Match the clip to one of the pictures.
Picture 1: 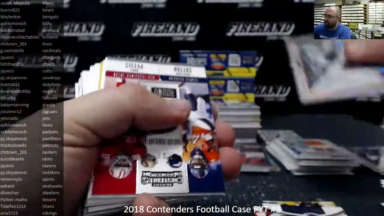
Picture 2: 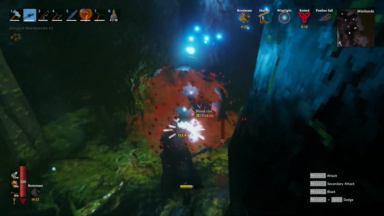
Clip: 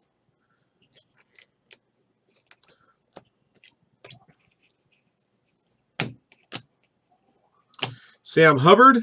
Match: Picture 1